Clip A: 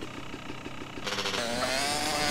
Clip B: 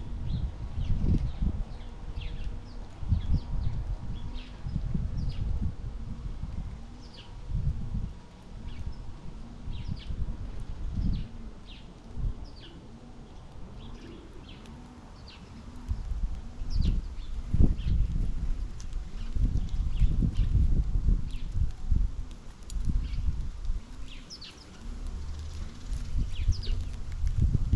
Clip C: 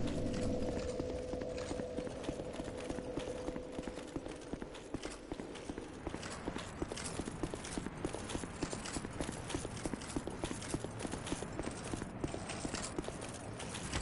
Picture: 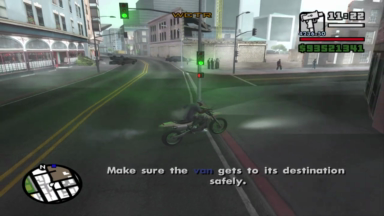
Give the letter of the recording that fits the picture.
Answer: A